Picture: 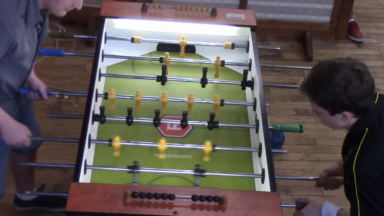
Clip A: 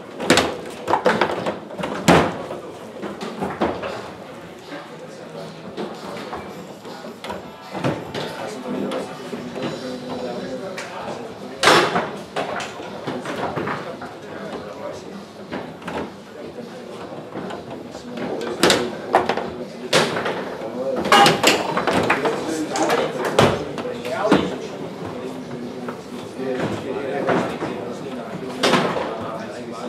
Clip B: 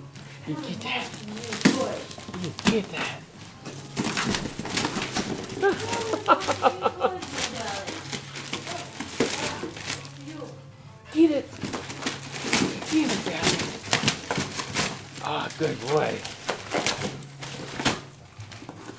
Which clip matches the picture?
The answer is A